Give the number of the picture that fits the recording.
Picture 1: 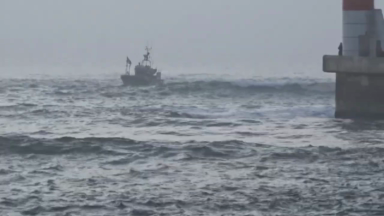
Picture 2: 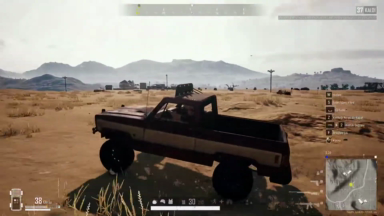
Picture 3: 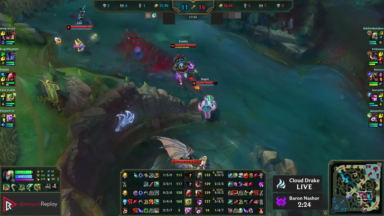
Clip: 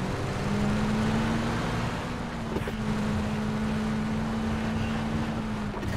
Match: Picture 2